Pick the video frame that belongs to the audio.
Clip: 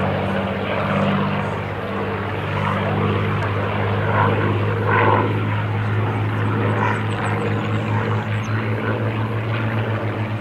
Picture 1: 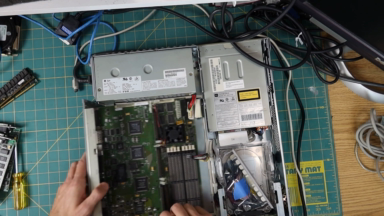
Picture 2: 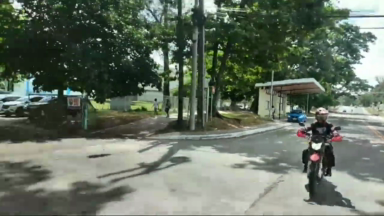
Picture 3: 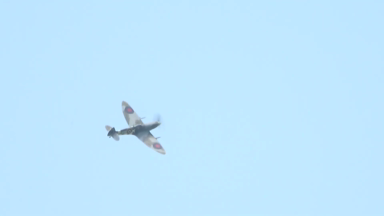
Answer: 3